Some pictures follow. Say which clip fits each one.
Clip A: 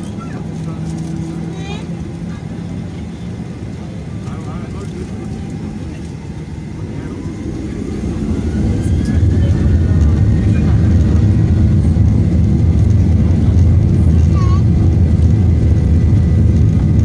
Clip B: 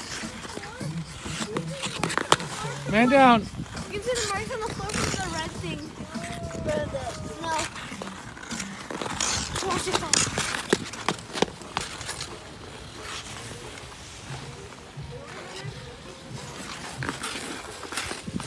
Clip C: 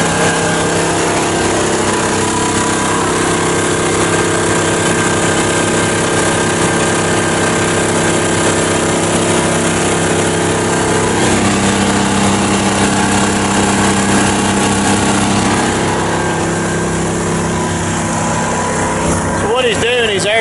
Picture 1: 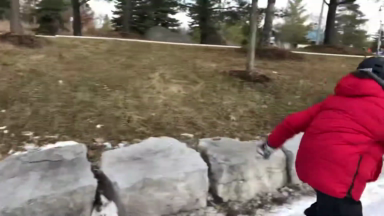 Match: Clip B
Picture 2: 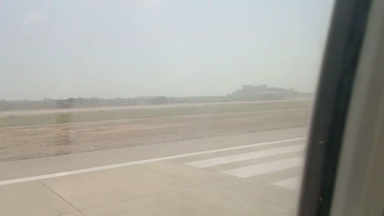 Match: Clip A